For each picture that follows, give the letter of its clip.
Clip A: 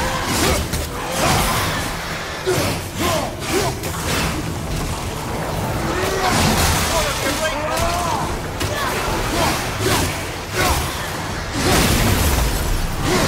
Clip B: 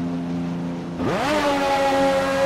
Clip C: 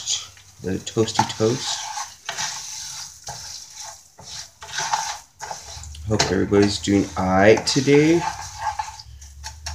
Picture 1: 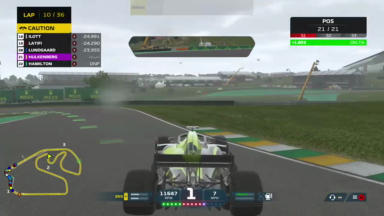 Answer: B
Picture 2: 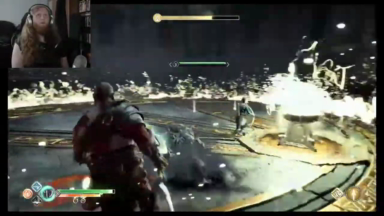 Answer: A